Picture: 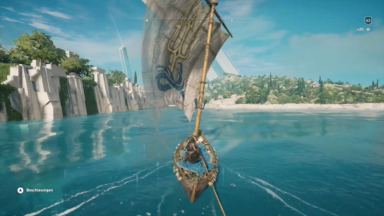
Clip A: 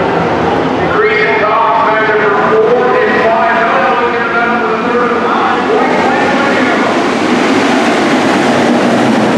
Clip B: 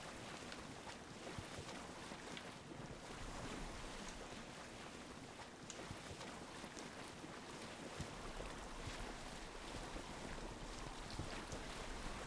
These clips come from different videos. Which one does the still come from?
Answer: B